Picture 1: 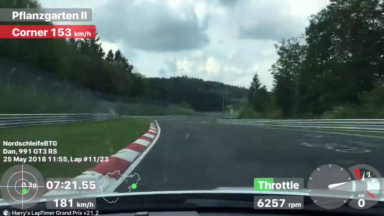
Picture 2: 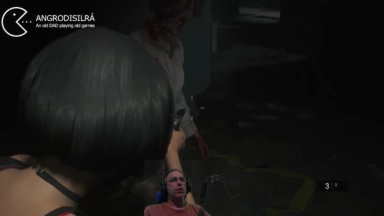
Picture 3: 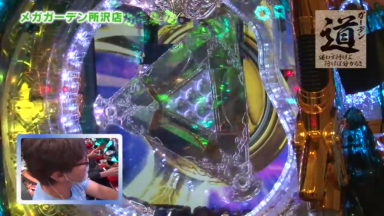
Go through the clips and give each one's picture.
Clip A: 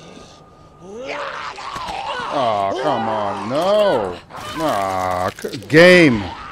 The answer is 2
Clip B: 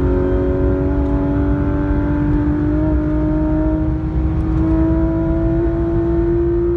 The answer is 1